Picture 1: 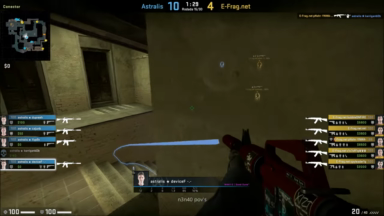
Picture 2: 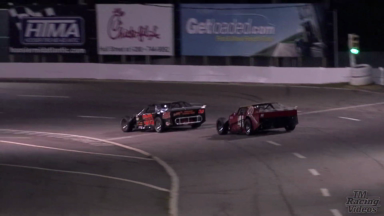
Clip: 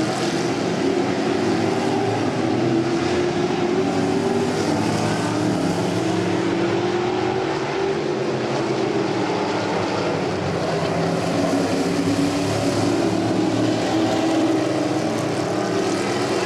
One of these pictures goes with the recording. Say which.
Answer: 2